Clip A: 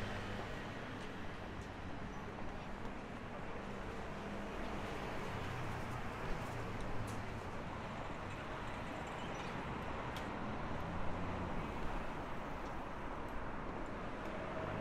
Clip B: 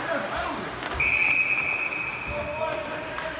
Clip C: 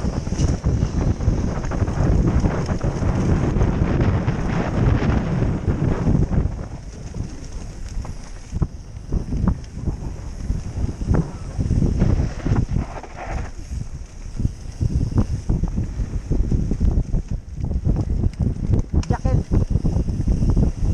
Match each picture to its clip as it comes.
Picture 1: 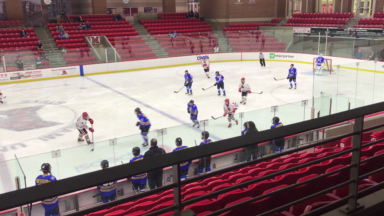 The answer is B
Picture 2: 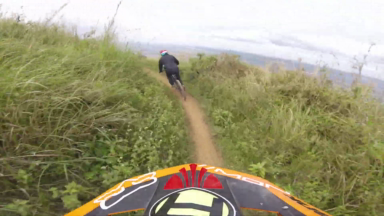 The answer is C